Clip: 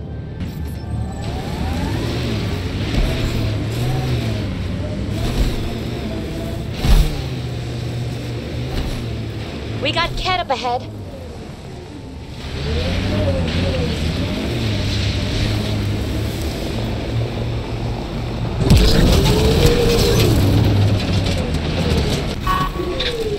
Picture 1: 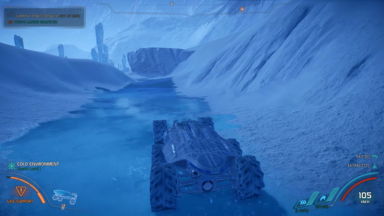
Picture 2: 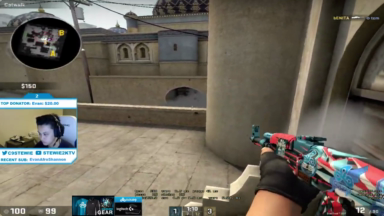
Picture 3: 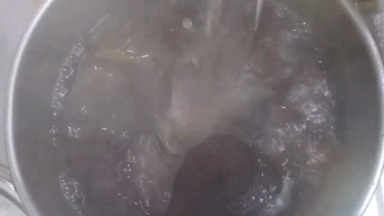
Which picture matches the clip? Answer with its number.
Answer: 1